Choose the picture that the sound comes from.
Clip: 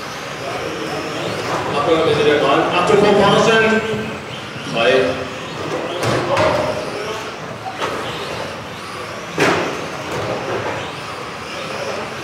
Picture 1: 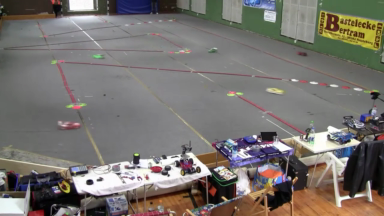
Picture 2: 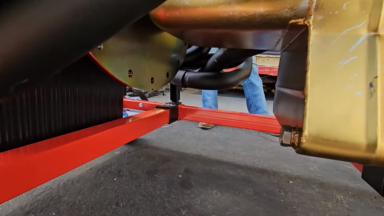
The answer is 1